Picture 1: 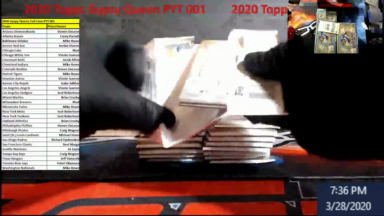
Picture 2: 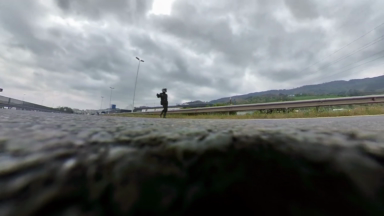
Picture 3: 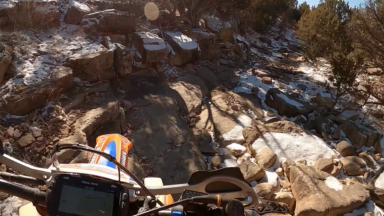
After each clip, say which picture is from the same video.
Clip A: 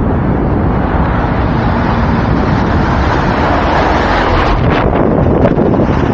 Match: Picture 2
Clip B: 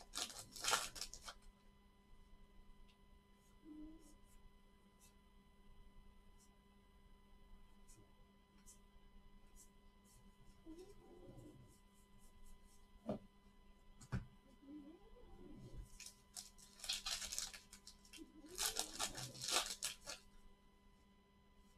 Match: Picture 1